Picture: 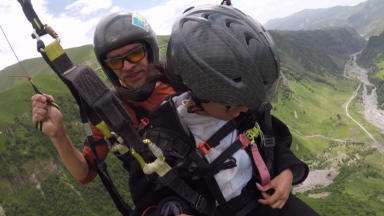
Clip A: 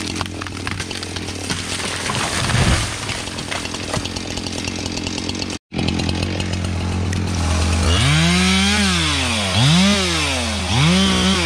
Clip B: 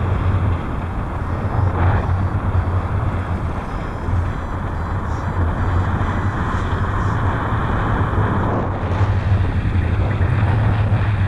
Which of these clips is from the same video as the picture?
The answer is B